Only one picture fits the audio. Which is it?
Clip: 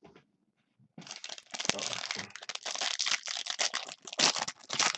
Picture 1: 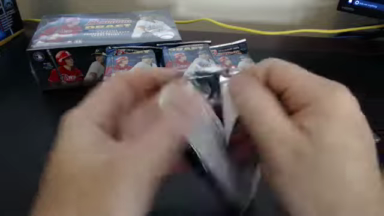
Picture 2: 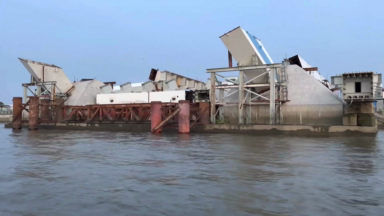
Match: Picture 1